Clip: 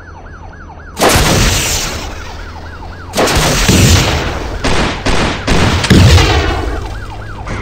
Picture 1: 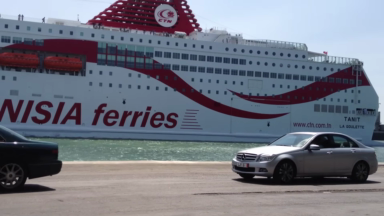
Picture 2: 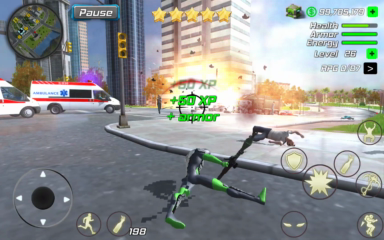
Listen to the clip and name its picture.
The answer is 2